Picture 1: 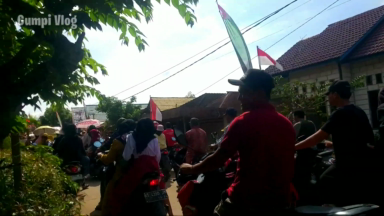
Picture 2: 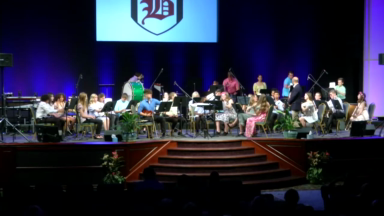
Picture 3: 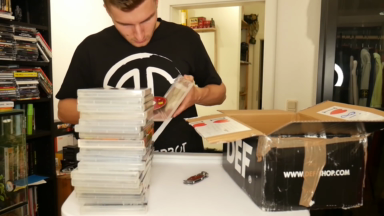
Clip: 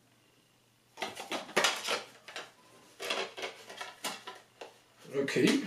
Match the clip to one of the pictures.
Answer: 3